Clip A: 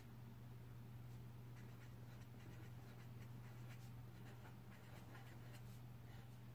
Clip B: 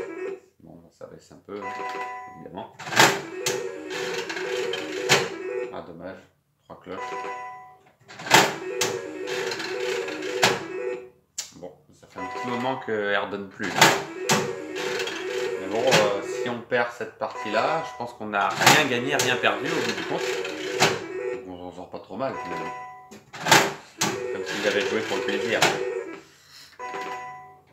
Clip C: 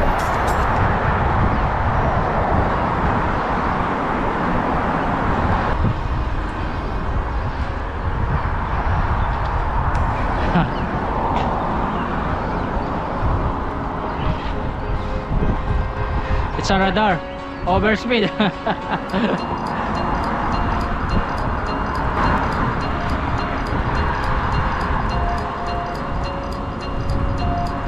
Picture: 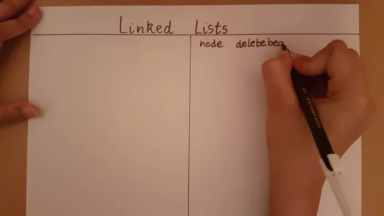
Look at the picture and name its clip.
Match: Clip A